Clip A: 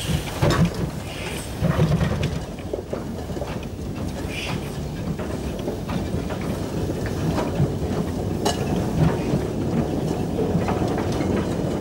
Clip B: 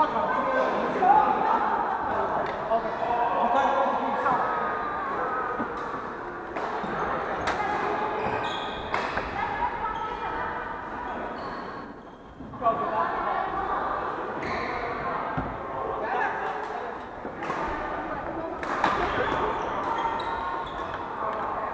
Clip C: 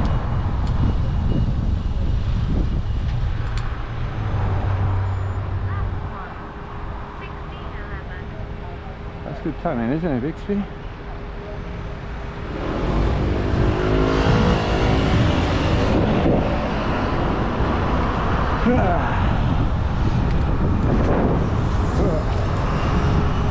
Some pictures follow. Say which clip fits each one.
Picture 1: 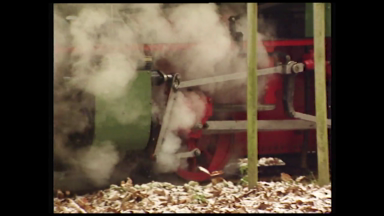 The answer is A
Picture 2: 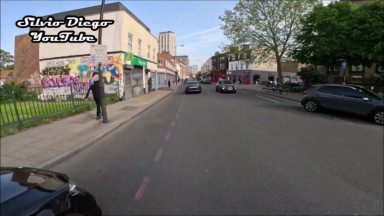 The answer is C